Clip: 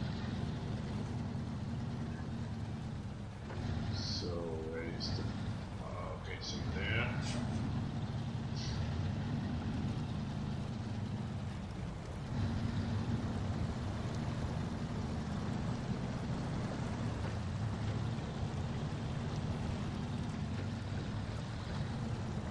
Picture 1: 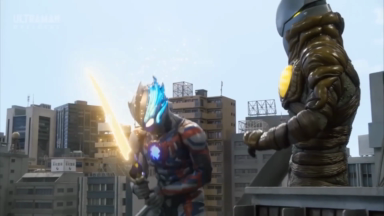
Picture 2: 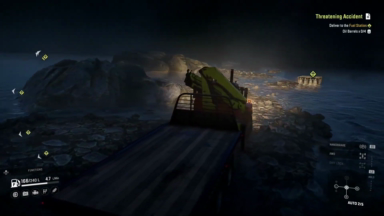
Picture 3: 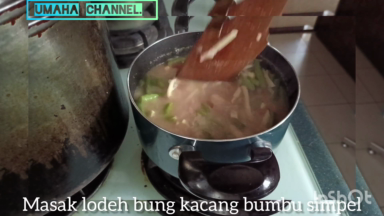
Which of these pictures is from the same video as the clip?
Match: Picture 2